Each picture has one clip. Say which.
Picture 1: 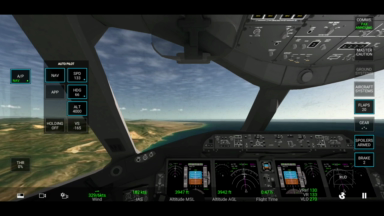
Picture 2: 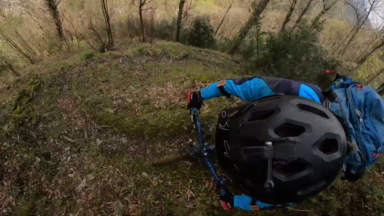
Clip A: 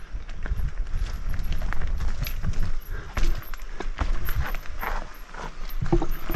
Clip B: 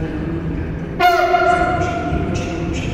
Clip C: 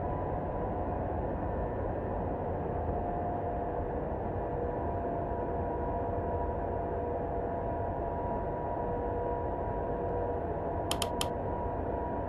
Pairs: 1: C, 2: A